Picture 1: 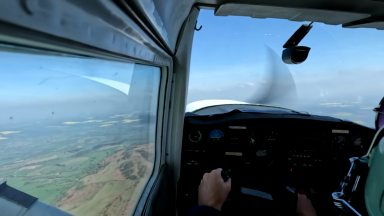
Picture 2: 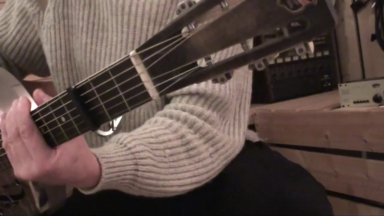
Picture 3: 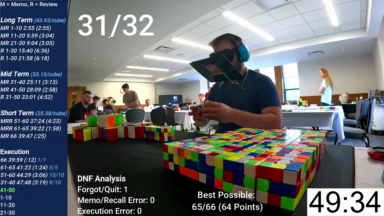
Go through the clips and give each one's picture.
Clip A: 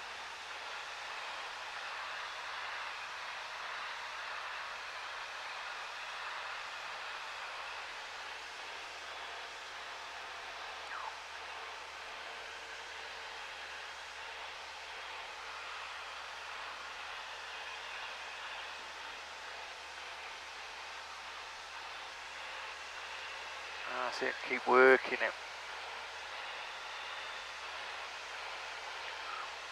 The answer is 1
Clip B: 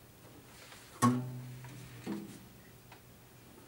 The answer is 2